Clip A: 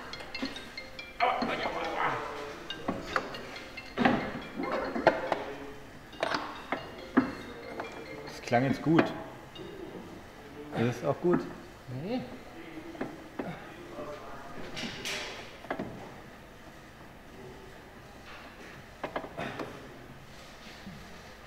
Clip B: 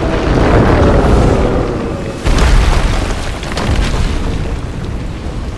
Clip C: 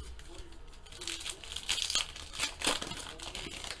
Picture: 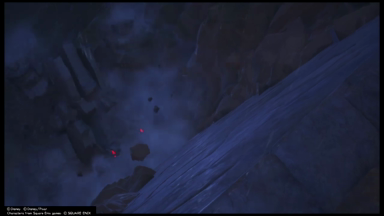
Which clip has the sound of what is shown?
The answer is B